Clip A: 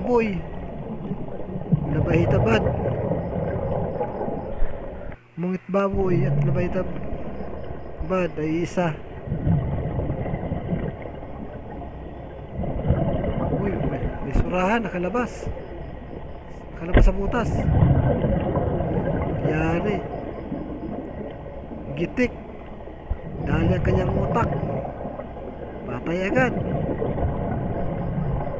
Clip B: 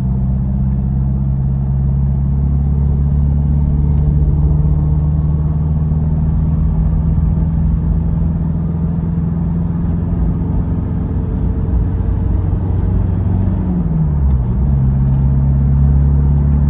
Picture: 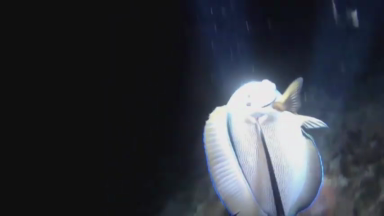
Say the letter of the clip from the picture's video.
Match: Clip A